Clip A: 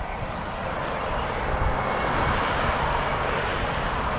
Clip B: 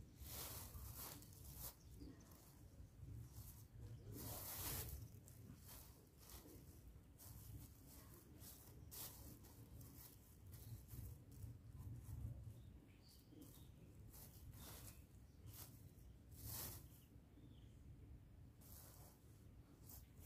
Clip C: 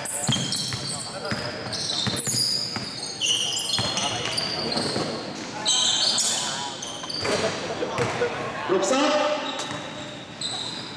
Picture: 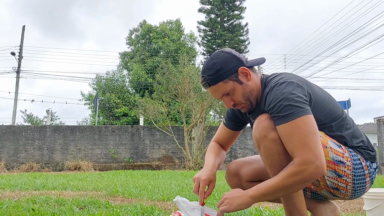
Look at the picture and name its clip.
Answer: B